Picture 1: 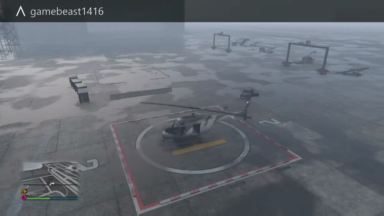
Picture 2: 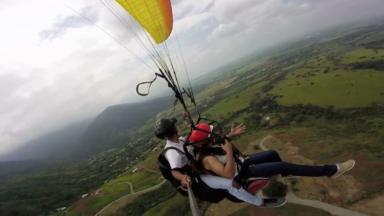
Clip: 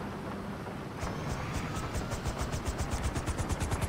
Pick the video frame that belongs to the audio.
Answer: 1